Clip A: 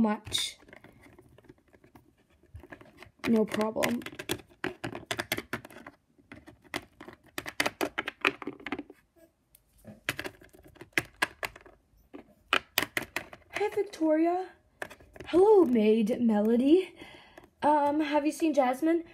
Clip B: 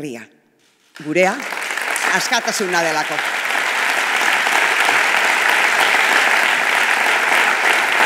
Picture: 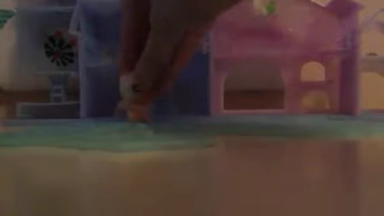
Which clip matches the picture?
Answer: A